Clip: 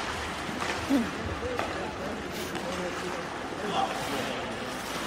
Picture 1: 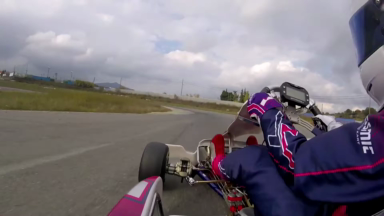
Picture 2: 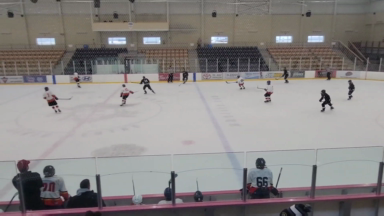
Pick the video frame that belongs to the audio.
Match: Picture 2